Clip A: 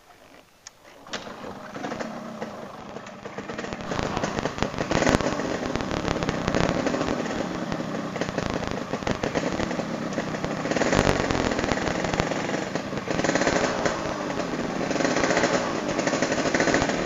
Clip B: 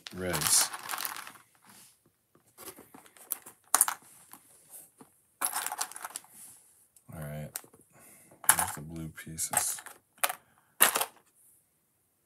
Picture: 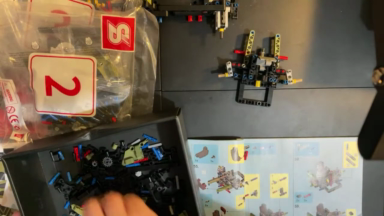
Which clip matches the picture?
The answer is B